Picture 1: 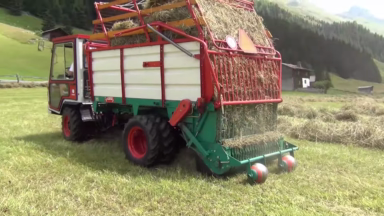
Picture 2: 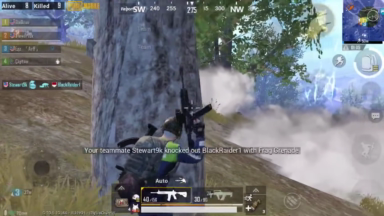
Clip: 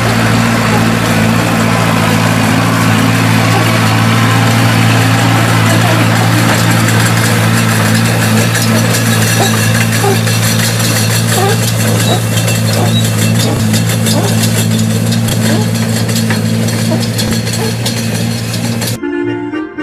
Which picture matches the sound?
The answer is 1